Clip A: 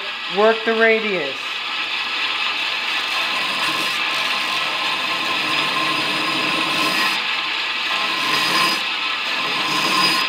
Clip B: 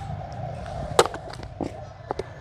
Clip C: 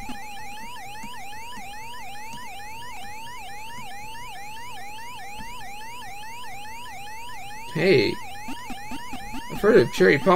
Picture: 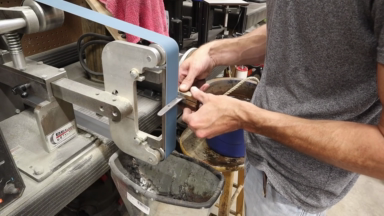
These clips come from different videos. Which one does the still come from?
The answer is A